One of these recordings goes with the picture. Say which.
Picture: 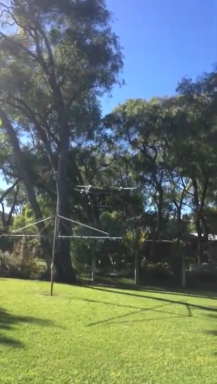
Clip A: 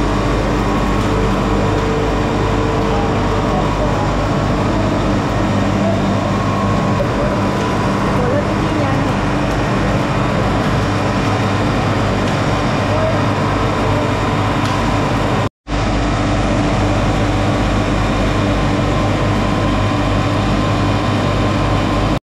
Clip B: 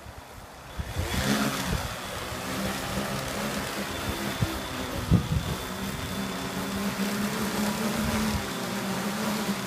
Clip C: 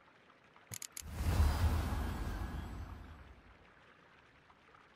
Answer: B